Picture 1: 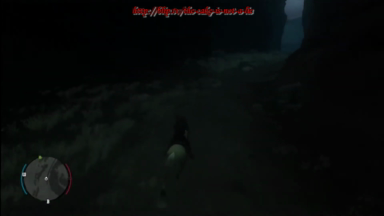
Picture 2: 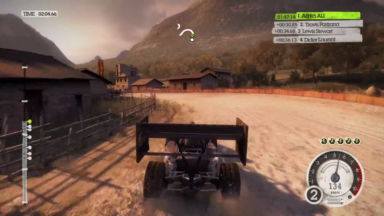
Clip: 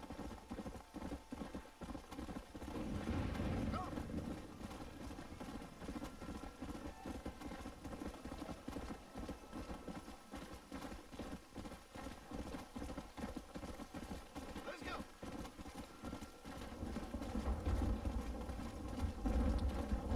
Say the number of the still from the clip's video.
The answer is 1